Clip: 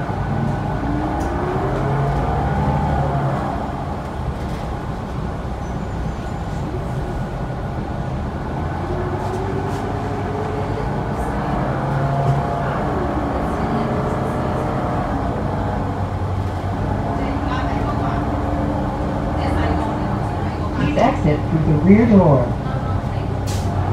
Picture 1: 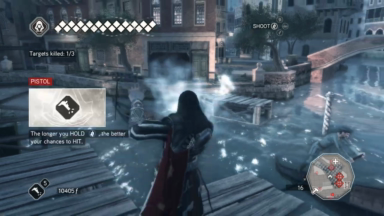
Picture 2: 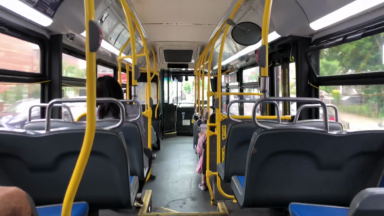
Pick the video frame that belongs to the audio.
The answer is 2